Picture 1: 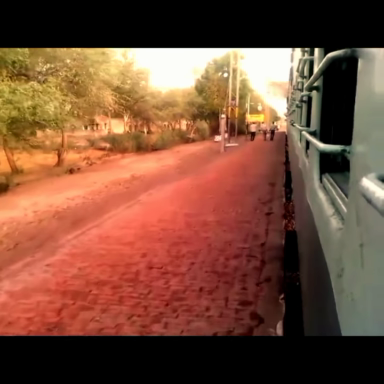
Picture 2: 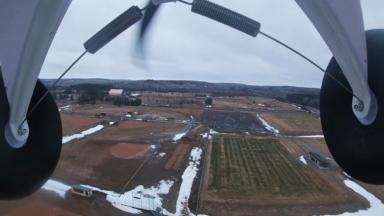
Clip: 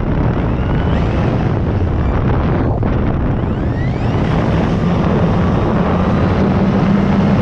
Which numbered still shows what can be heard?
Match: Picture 2